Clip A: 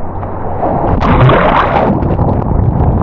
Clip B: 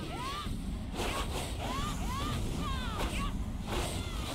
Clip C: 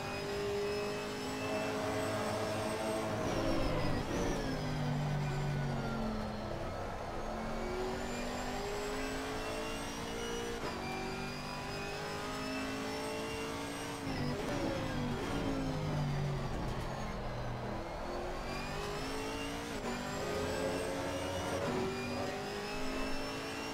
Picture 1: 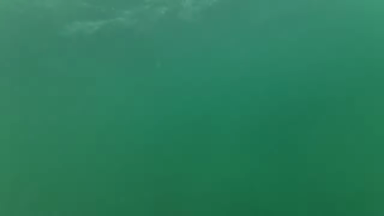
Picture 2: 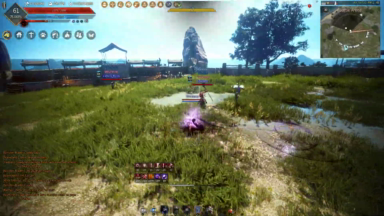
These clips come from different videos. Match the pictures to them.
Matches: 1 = A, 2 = B